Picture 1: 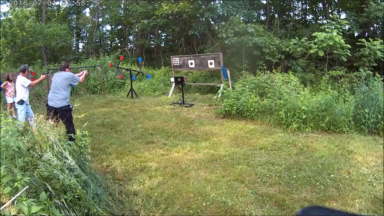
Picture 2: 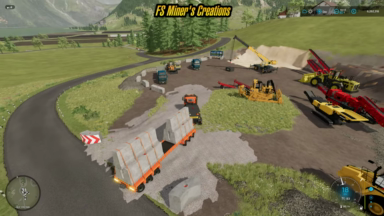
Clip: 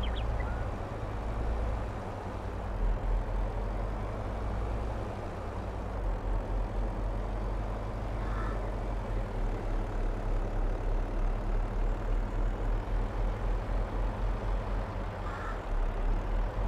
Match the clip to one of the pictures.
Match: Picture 2